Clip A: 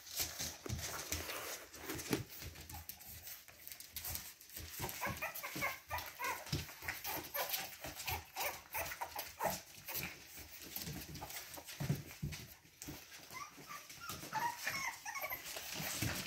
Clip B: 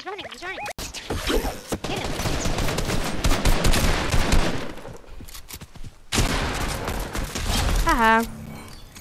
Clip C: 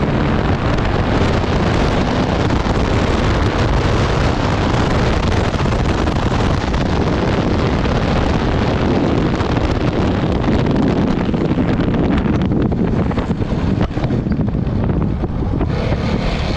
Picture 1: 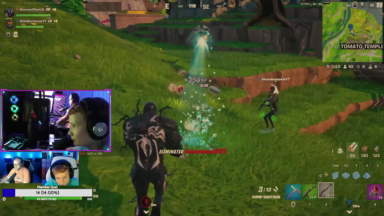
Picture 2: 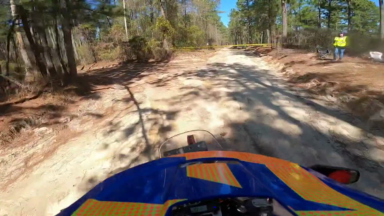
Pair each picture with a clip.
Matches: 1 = B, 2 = C